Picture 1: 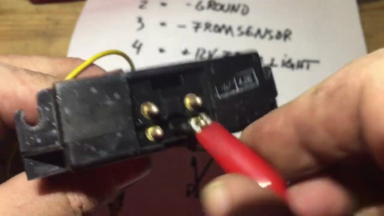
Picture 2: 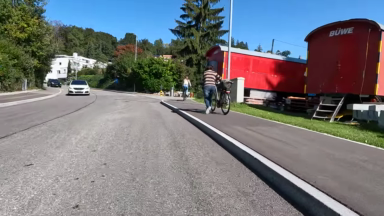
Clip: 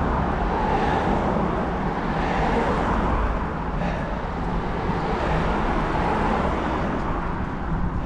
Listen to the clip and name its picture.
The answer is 2